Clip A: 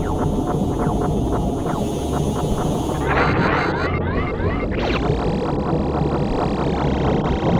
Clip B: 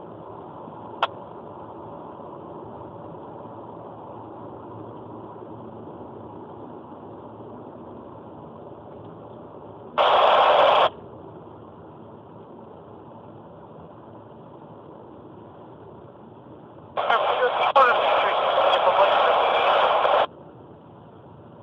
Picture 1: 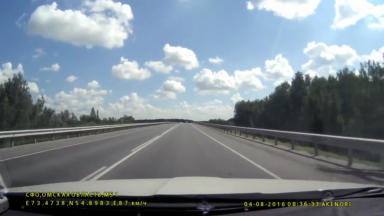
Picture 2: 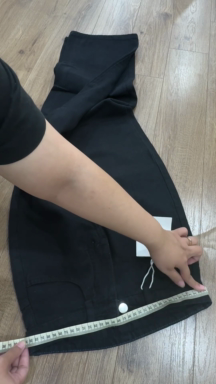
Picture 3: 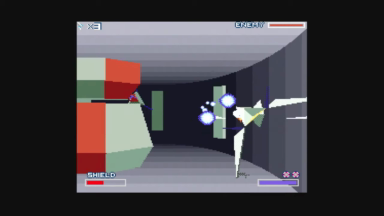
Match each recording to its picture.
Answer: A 3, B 1